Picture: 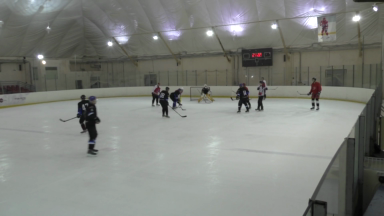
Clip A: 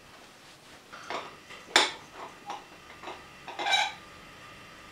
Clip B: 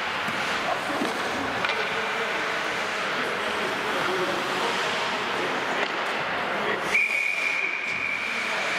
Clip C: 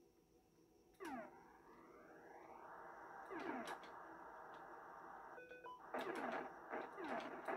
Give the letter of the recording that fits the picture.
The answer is B